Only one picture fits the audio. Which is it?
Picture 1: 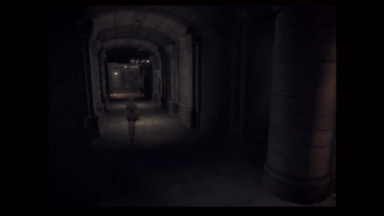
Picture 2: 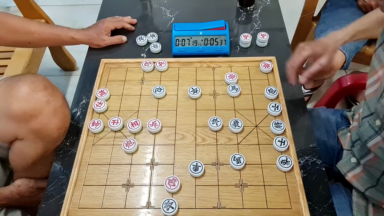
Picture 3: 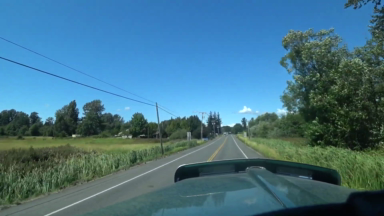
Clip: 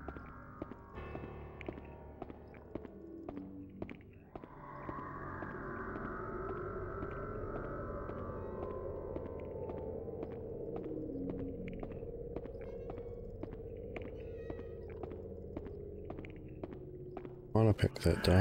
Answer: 1